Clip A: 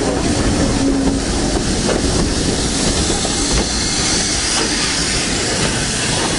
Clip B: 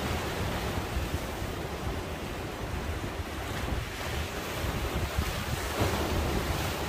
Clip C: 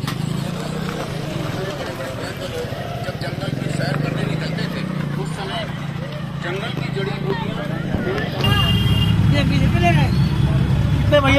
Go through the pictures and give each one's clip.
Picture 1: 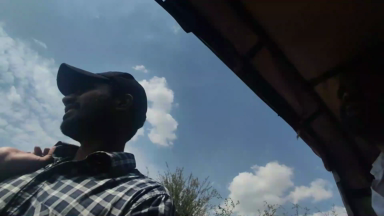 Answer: C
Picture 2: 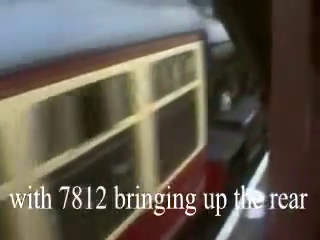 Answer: A